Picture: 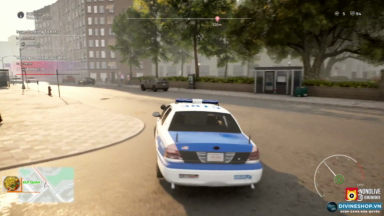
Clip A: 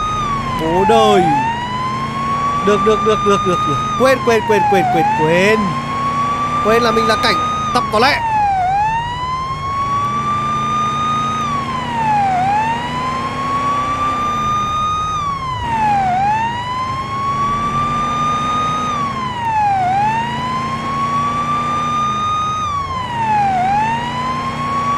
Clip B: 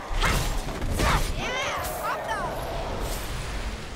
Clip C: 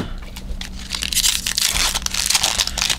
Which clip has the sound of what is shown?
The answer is A